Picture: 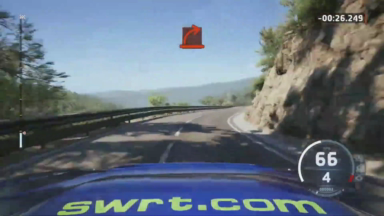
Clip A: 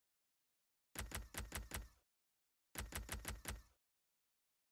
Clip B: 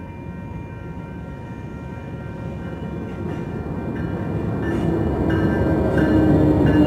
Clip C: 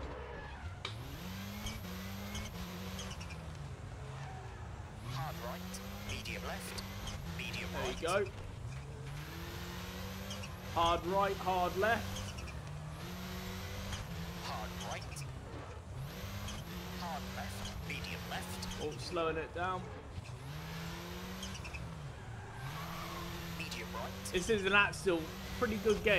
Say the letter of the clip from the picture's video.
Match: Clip C